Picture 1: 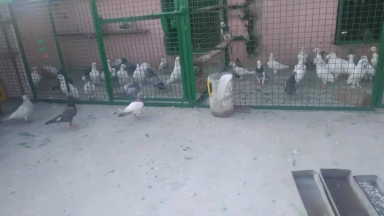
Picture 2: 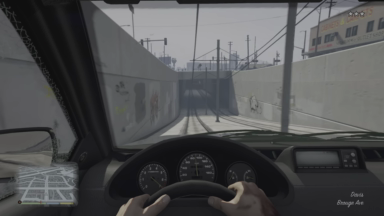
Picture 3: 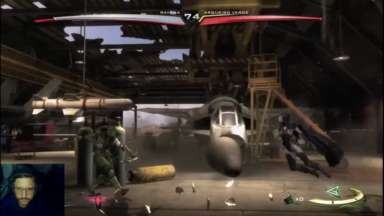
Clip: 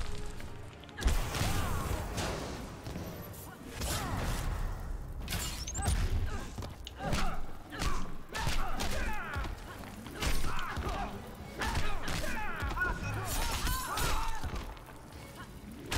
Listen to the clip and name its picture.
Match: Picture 3